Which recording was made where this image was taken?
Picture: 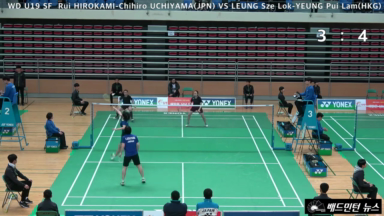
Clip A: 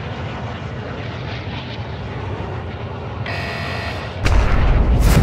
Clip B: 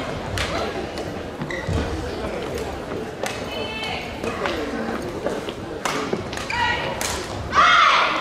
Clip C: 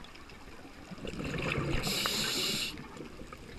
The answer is B